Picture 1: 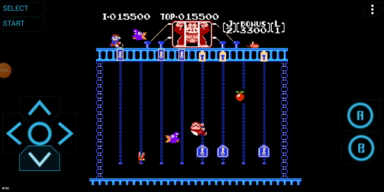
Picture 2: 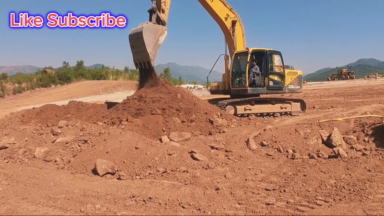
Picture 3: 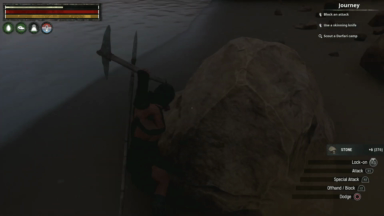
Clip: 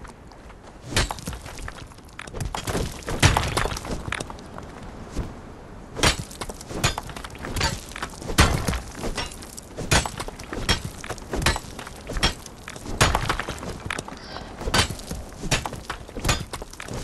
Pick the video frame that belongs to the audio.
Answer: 3